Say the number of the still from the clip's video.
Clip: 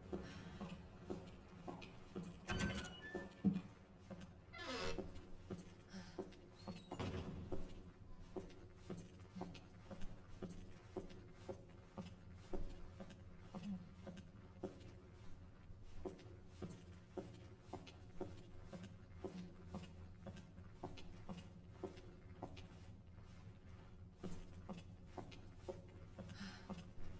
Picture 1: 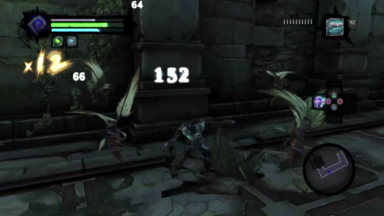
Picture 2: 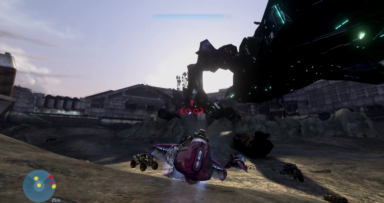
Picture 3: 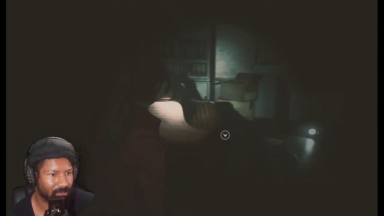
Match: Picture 3